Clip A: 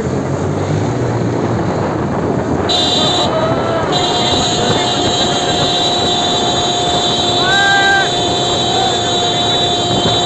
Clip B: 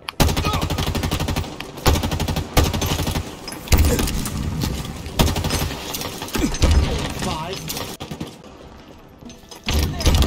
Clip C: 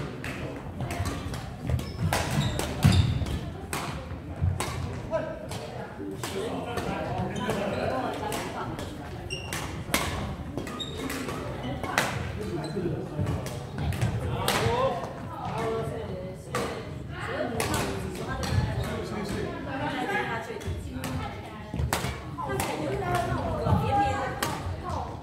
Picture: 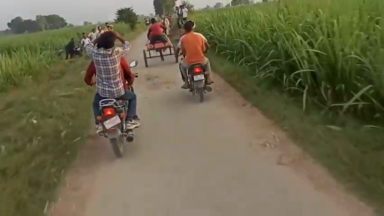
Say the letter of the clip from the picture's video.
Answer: A